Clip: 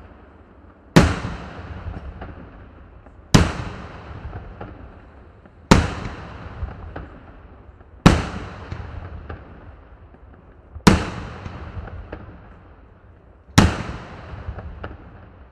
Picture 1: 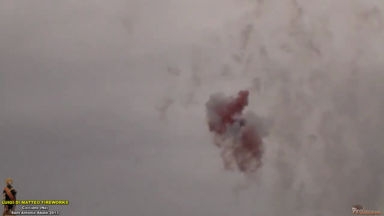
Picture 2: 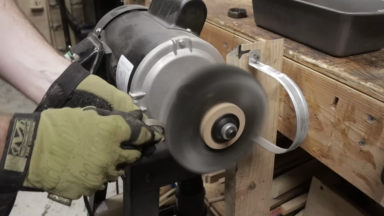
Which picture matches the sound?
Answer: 1